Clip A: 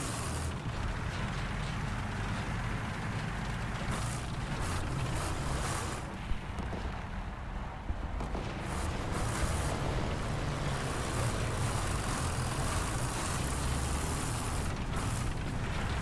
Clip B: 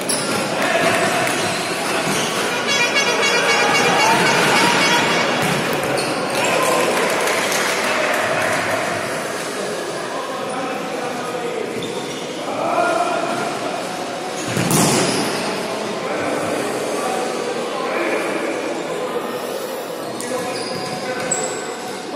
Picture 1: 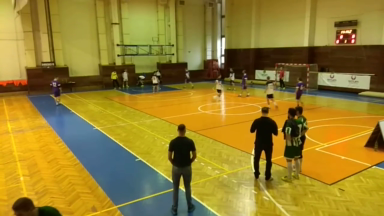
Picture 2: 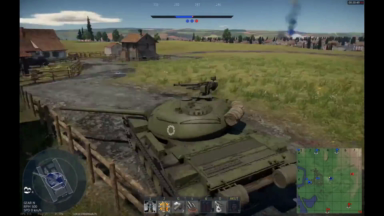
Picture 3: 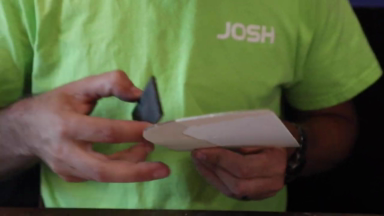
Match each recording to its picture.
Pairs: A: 2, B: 1